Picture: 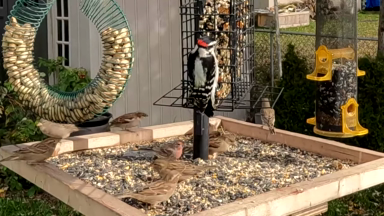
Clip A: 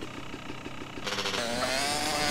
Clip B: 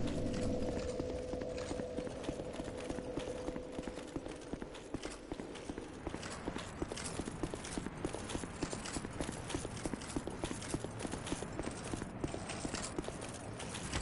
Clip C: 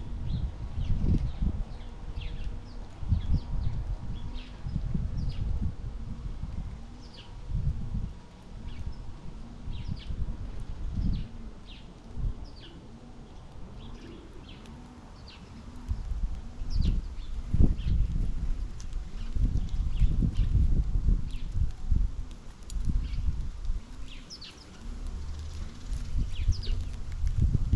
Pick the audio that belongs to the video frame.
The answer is C